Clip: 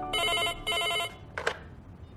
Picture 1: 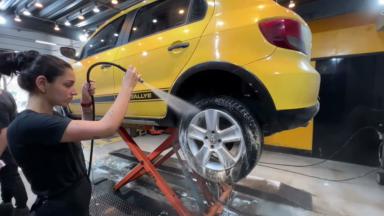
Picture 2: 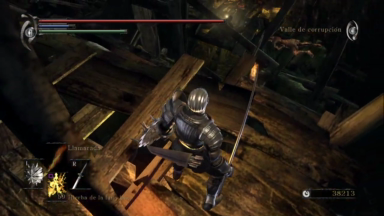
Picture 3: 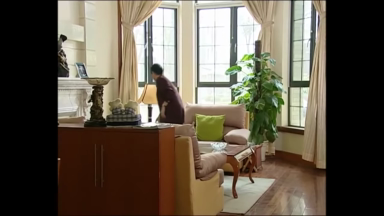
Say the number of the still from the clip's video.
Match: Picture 3